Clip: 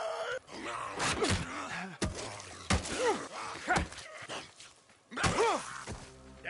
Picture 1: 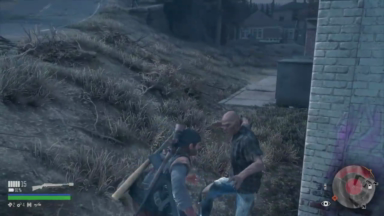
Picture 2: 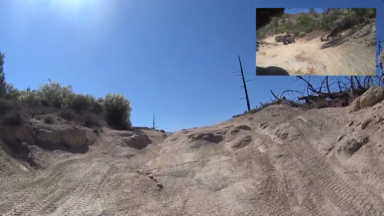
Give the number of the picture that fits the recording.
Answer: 1